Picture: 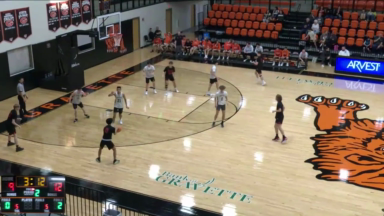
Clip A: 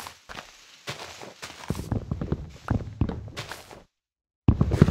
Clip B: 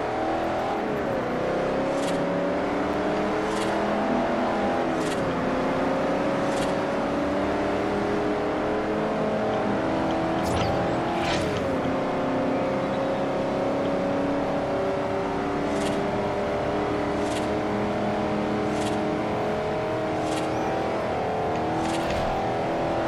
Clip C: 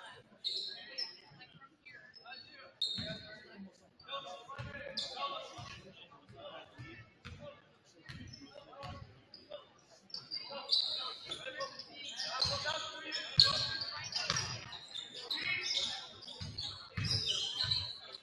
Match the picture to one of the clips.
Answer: C